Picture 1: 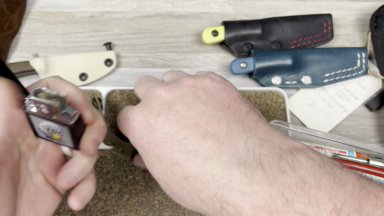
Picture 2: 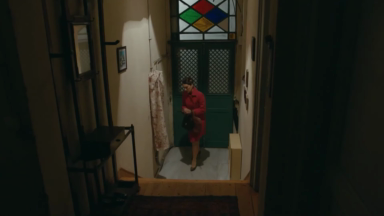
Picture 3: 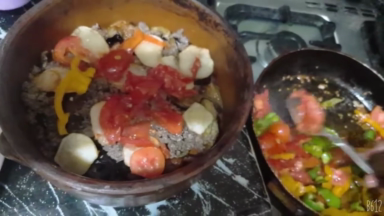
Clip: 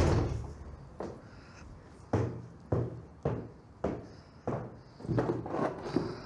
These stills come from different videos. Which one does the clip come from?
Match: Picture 2